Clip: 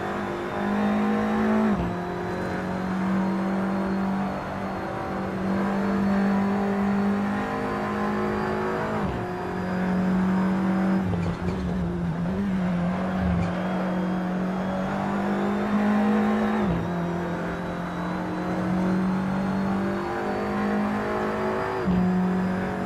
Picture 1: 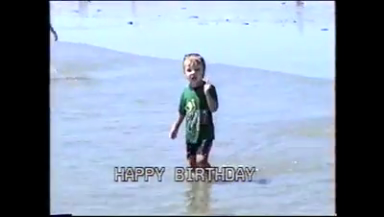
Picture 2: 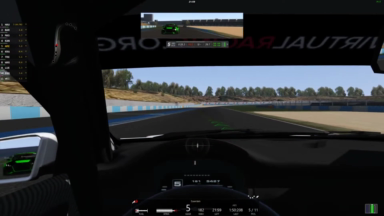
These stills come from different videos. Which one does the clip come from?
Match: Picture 2